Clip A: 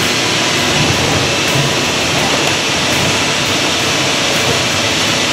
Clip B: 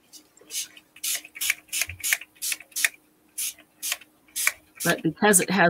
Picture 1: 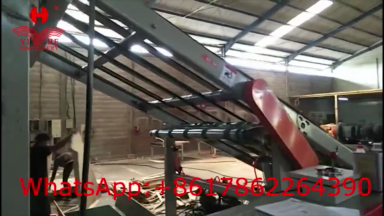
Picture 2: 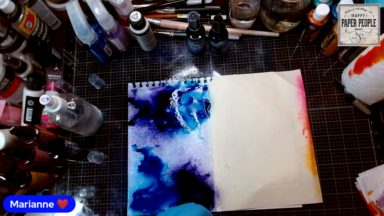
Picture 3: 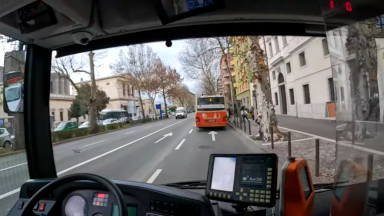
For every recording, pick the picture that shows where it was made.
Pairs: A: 1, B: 2